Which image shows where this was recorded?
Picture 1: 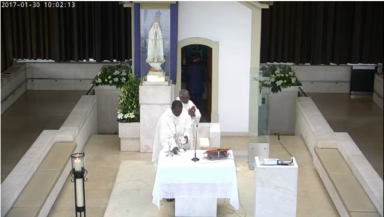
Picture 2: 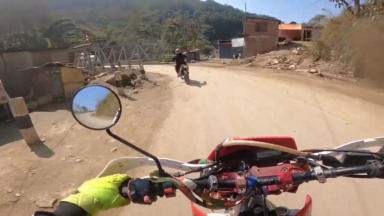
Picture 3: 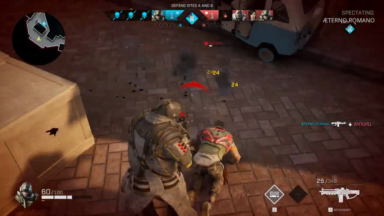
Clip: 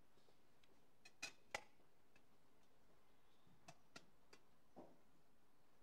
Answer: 1